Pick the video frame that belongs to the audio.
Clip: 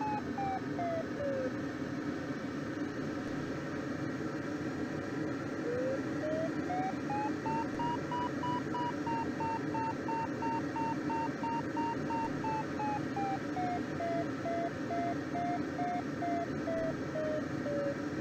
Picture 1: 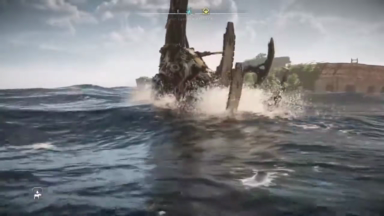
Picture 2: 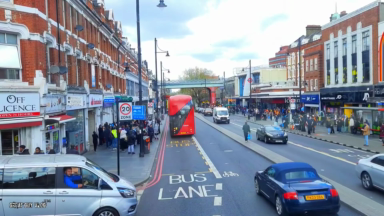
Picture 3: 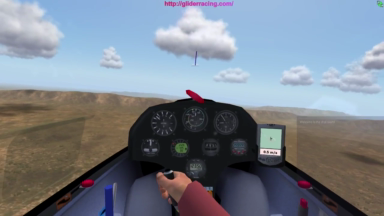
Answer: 3